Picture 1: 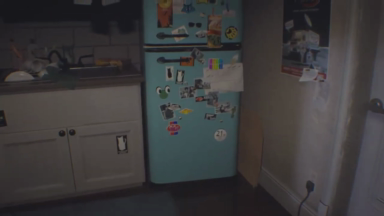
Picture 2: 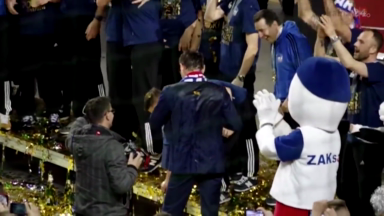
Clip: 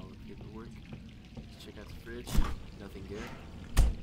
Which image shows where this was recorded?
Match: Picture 1